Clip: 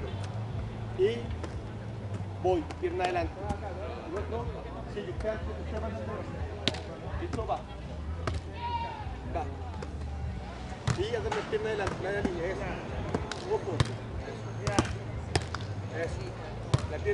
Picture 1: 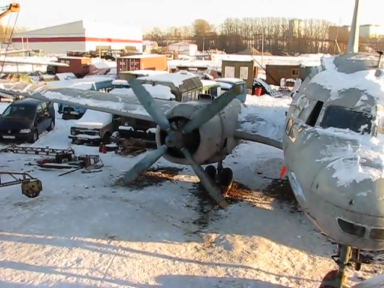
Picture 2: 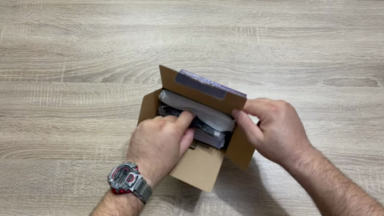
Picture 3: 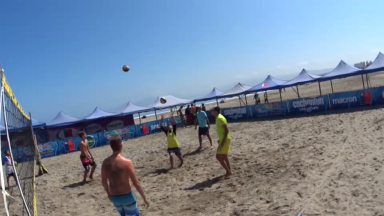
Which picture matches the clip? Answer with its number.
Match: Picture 3